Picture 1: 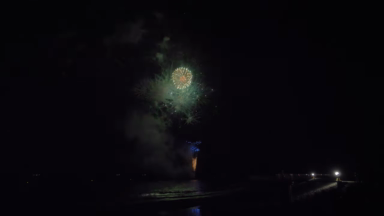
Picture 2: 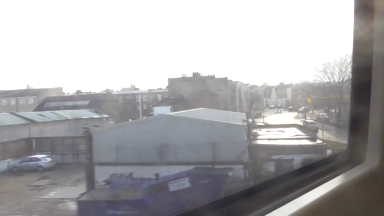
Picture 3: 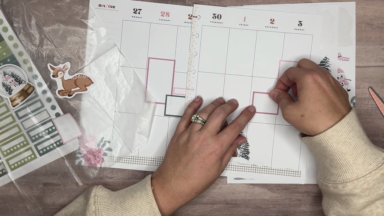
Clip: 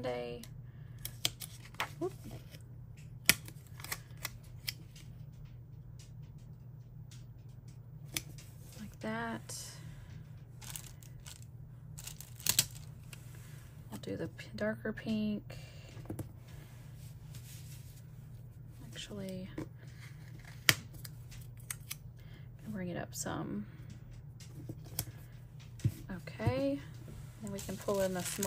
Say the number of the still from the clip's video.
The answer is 3